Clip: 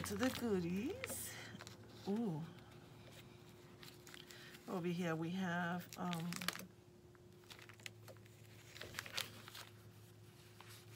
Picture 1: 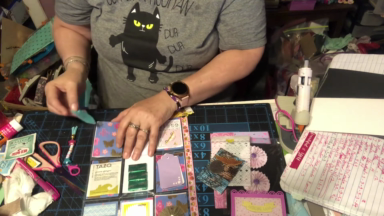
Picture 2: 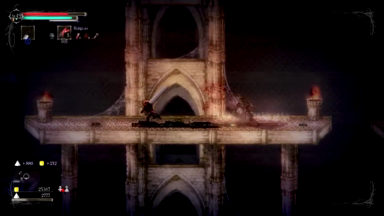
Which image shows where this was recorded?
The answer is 1